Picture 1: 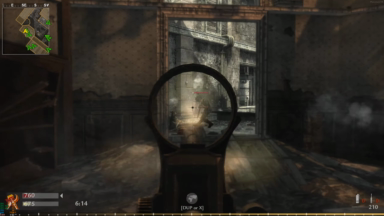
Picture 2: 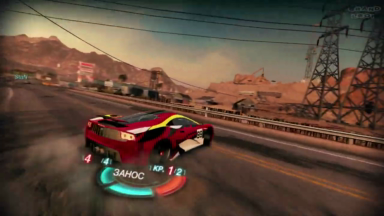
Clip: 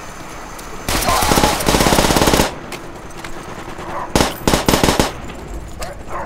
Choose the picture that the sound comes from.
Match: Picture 1